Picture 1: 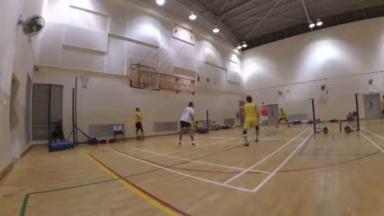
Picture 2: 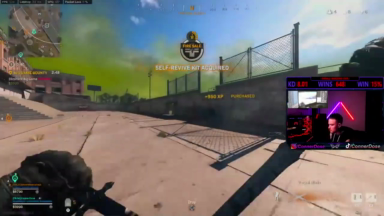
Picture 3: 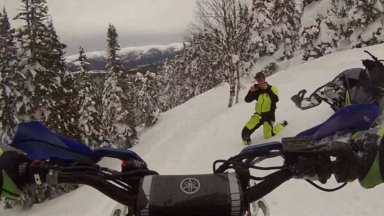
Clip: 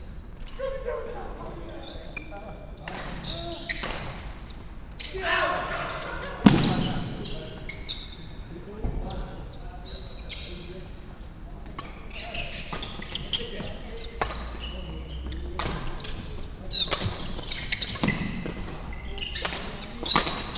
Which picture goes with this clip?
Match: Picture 1